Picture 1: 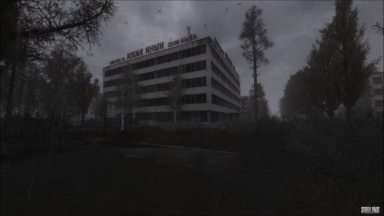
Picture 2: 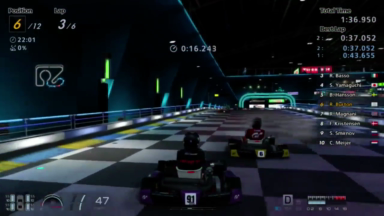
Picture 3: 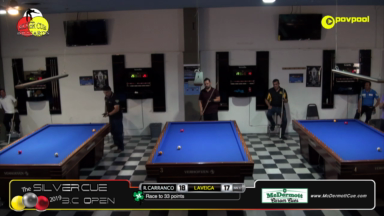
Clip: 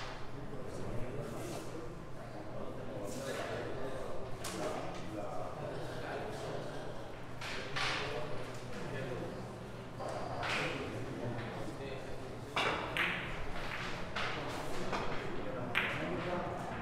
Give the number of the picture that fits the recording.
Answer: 3